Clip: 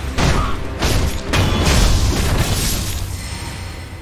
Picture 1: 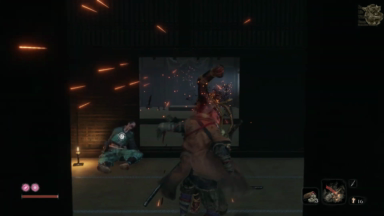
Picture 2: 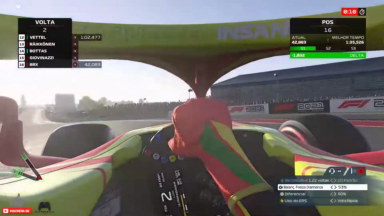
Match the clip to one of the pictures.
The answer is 1